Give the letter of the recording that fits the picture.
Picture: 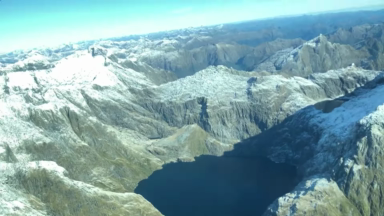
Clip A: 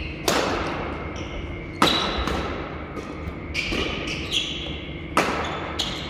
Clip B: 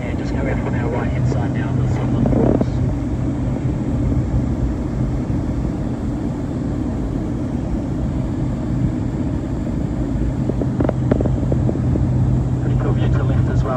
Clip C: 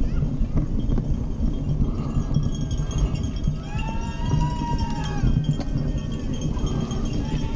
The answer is B